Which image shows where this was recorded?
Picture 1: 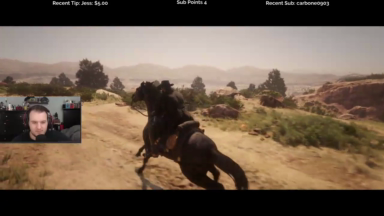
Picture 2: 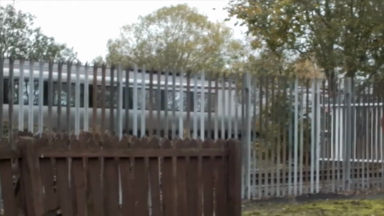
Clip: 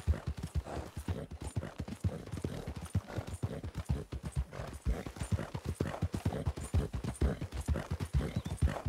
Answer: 1